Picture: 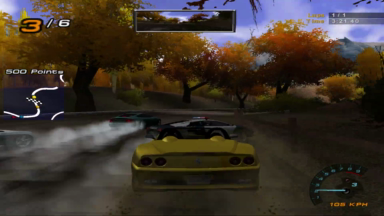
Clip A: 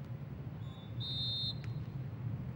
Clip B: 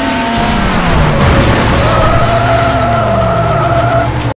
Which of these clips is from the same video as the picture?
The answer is B